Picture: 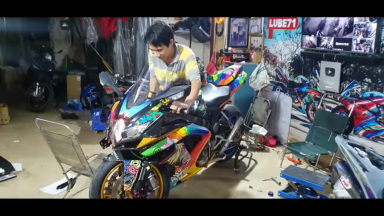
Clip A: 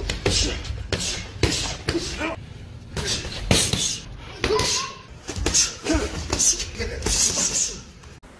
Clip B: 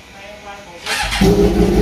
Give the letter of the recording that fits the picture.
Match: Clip B